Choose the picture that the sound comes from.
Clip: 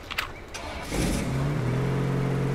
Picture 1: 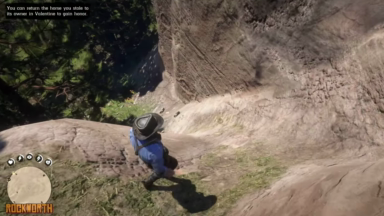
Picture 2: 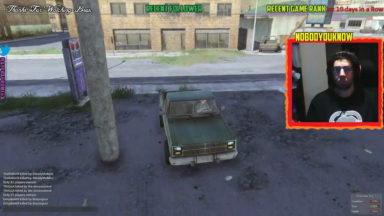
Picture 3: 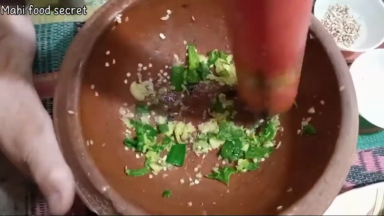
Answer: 2